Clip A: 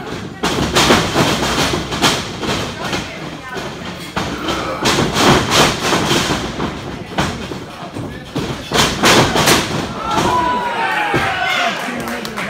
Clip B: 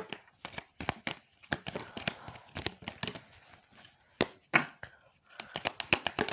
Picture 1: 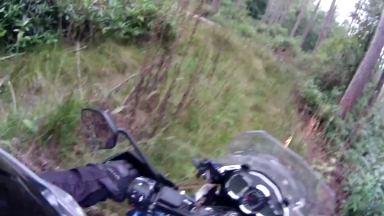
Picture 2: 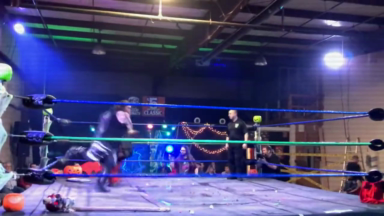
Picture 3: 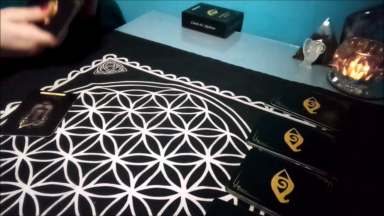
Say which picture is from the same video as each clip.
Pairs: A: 2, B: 3